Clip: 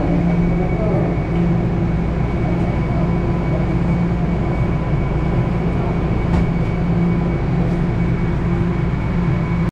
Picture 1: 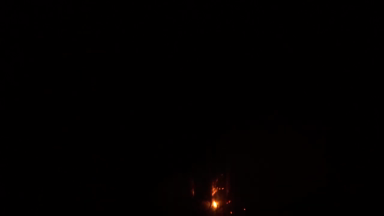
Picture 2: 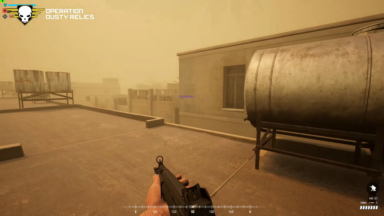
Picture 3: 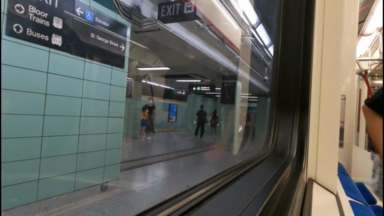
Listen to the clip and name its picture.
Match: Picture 3